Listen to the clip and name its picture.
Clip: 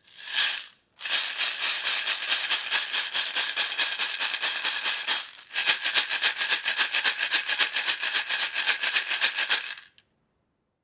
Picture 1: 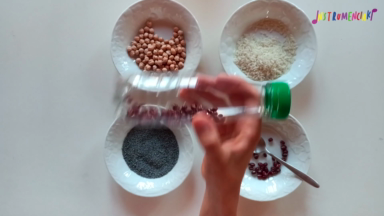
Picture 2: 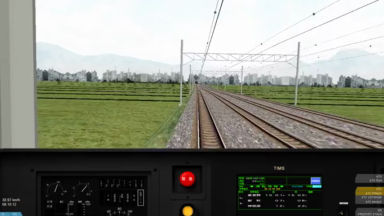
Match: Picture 1